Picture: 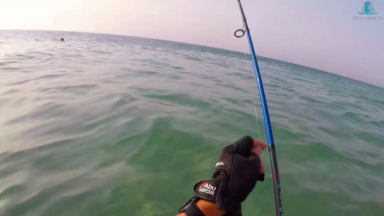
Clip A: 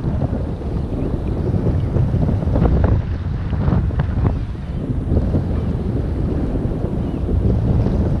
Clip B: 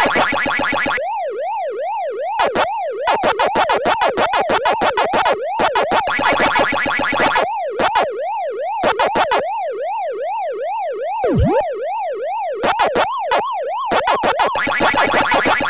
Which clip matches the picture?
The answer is A